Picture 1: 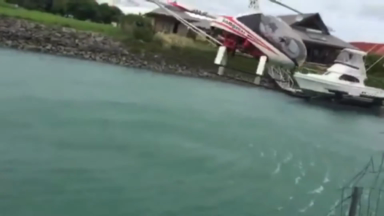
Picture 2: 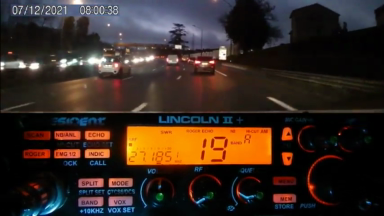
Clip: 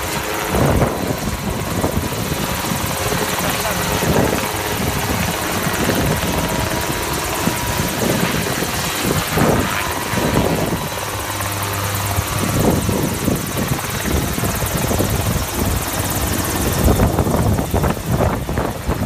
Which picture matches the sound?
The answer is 1